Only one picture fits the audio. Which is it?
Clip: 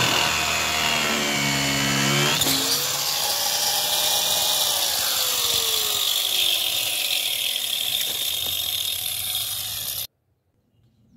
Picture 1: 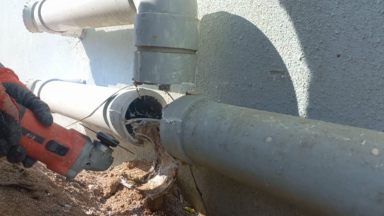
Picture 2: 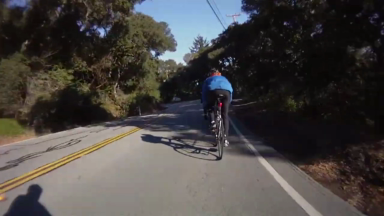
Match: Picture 1